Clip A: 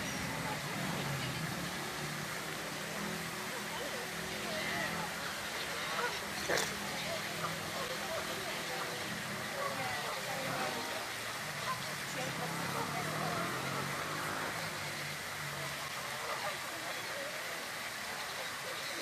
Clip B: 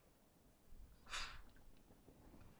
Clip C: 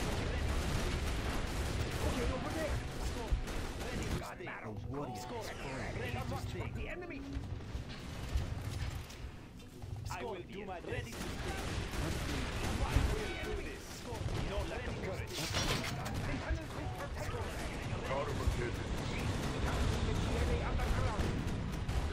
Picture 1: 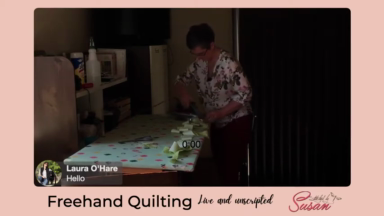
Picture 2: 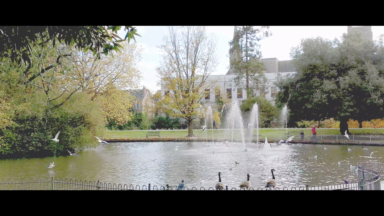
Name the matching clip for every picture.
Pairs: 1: B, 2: A